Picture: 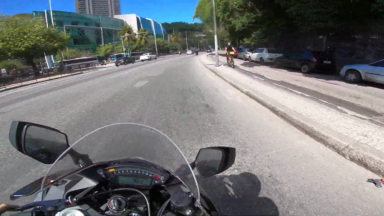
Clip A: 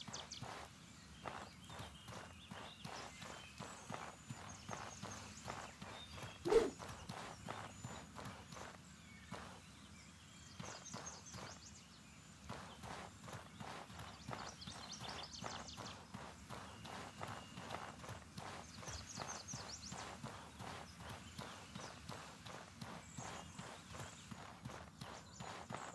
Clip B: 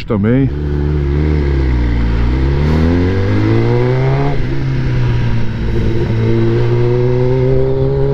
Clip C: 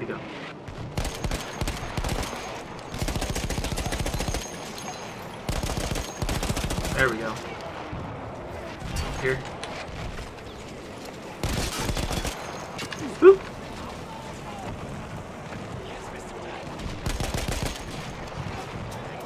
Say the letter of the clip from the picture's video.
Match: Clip B